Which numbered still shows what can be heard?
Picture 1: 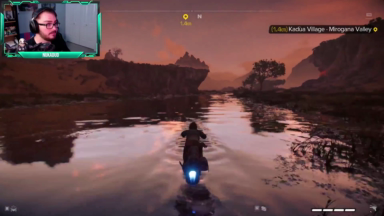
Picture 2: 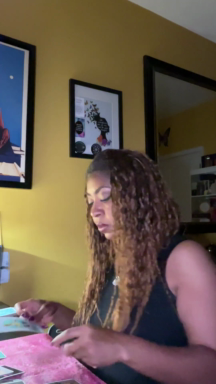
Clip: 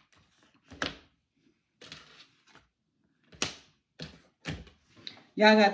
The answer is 2